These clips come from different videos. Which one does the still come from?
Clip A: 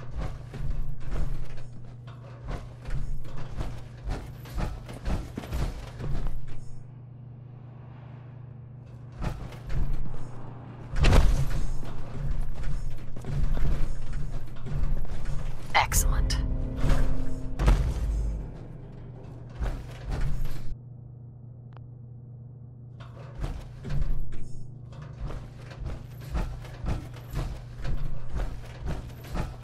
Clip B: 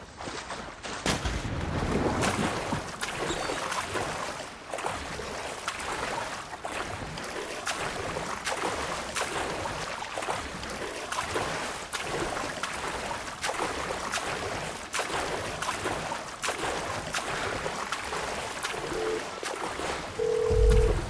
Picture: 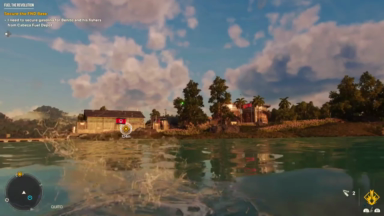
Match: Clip B